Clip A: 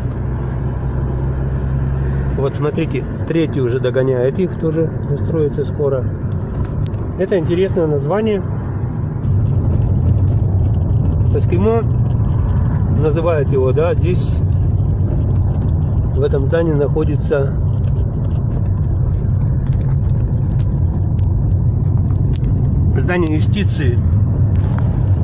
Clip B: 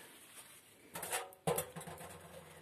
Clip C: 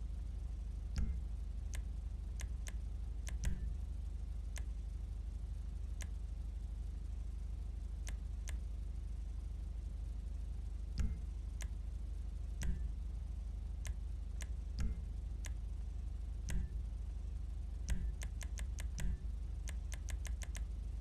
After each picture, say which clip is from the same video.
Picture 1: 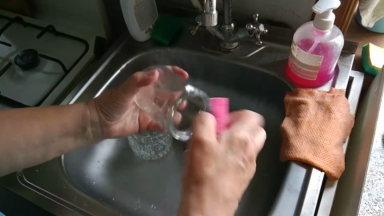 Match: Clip B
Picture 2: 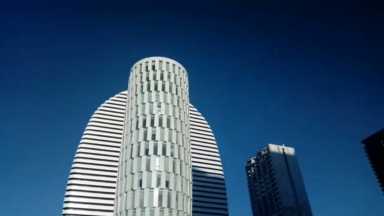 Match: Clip A